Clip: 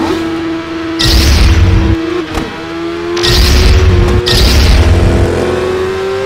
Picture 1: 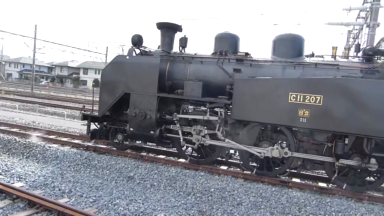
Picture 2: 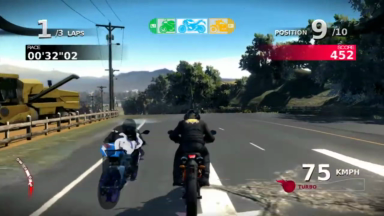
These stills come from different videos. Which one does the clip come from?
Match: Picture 2